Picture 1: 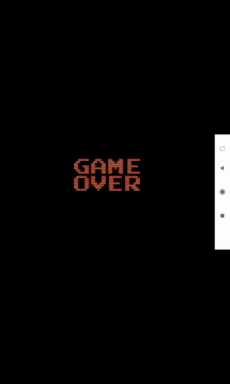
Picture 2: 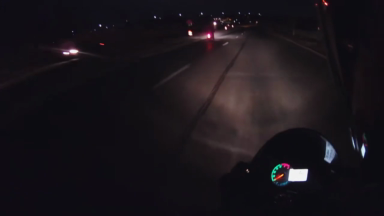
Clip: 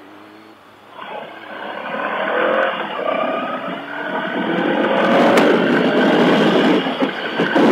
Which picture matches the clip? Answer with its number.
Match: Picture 2